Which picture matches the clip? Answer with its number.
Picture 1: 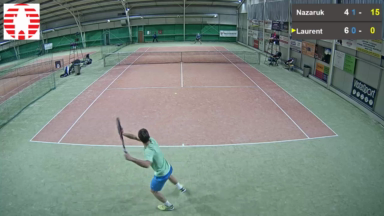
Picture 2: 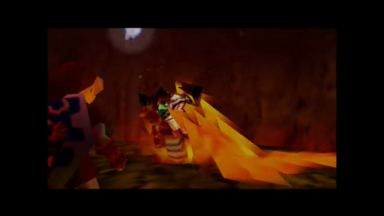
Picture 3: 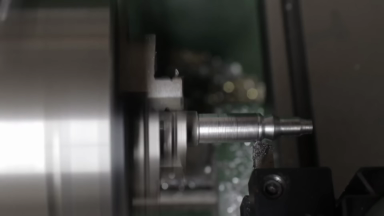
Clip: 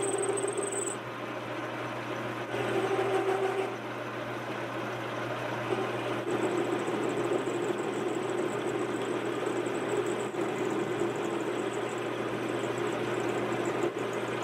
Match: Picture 3